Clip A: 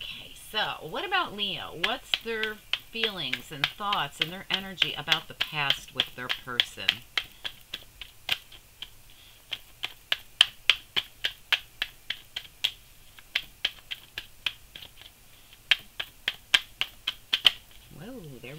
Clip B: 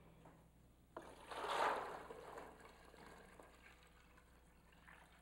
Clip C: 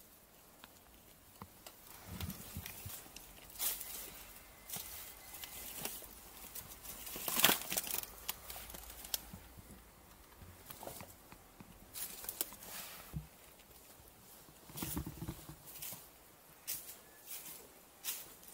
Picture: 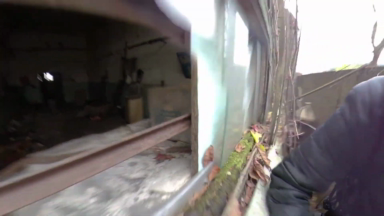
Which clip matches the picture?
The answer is C